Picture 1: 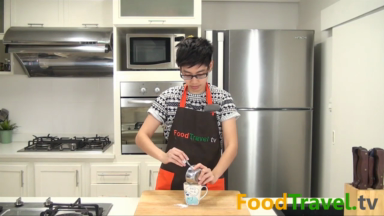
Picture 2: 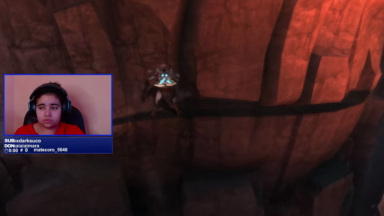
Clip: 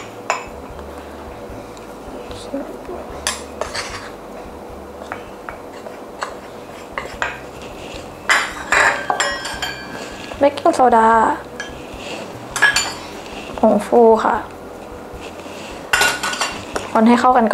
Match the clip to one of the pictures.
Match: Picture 1